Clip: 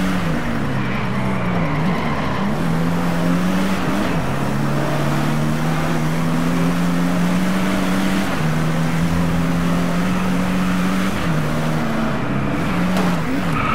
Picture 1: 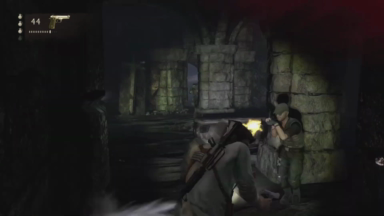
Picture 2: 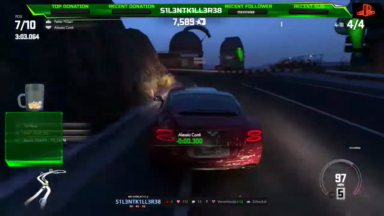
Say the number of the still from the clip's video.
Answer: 2